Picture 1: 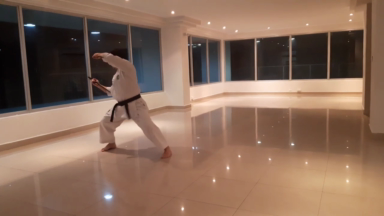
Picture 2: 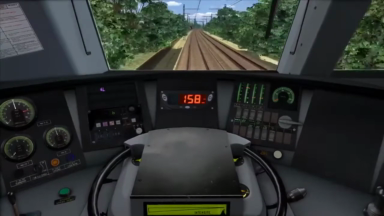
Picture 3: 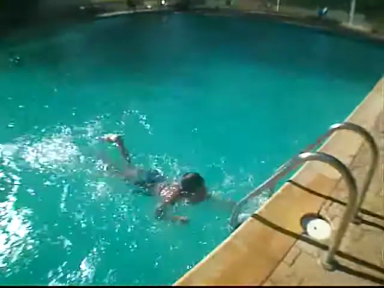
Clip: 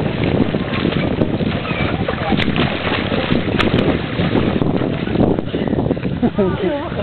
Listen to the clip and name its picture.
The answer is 3